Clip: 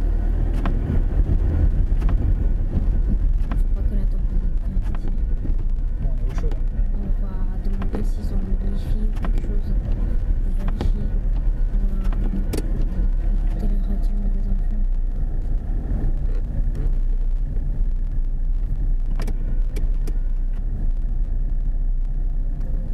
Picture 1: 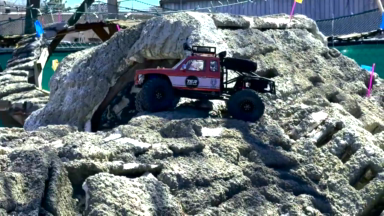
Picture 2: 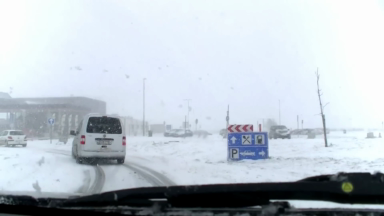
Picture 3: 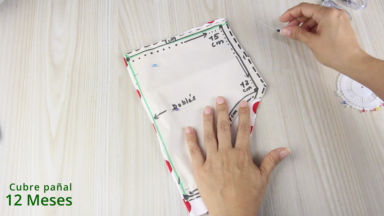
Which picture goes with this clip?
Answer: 2